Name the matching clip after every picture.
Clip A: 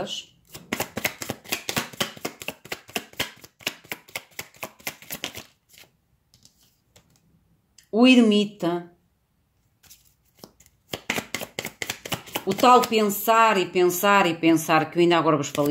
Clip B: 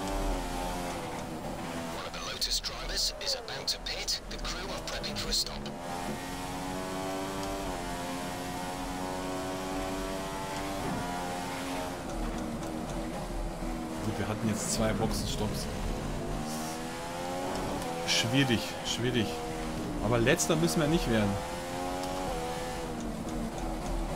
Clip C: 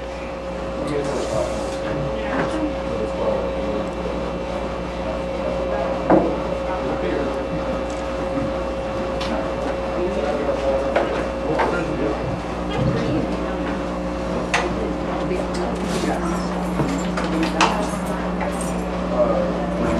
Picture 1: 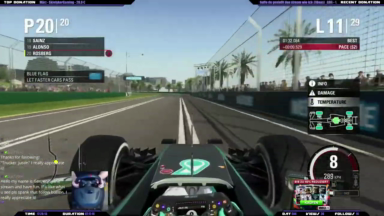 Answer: B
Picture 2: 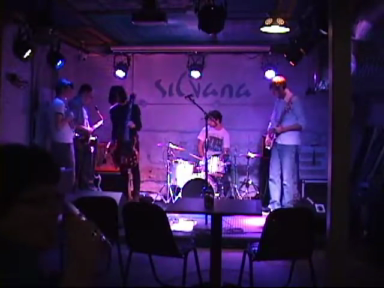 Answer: C